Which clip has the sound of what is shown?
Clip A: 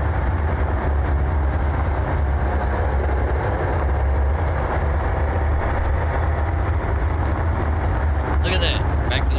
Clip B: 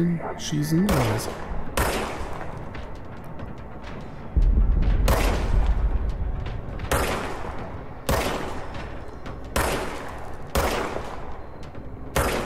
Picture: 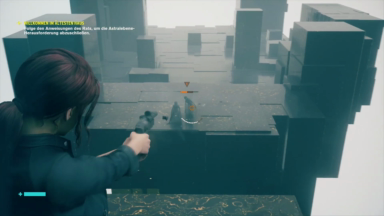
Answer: B